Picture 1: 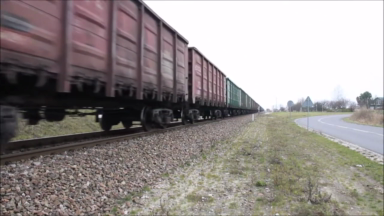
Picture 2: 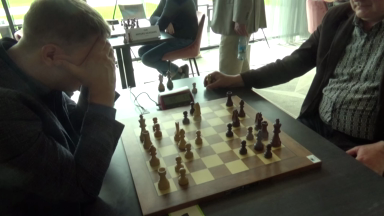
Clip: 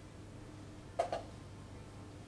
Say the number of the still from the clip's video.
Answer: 2